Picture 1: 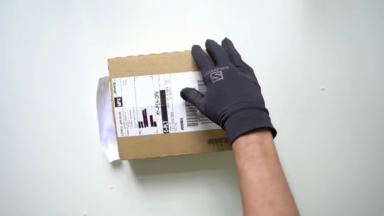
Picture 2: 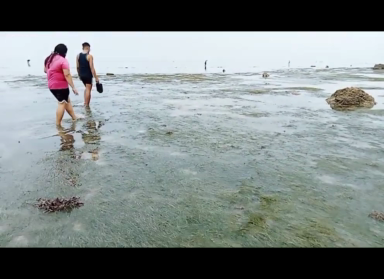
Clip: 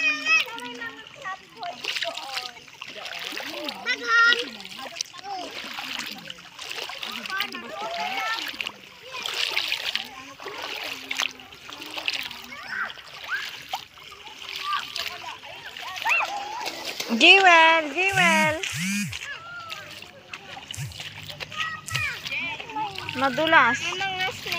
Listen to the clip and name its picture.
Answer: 2